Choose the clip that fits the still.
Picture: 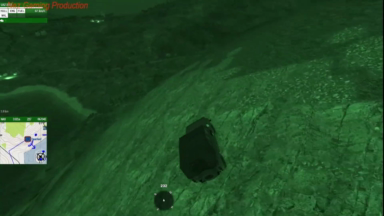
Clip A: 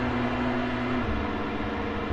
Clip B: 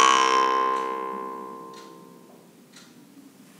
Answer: A